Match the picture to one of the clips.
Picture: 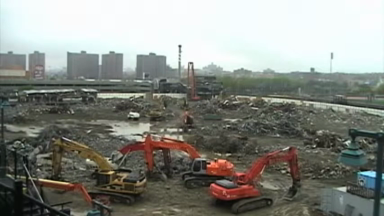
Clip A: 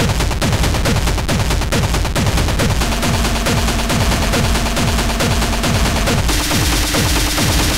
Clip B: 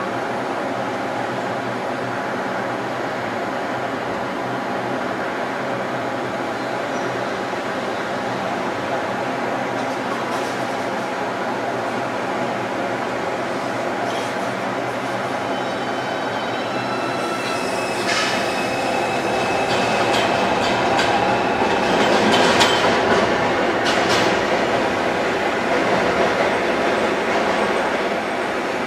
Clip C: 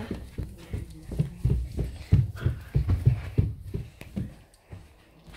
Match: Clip B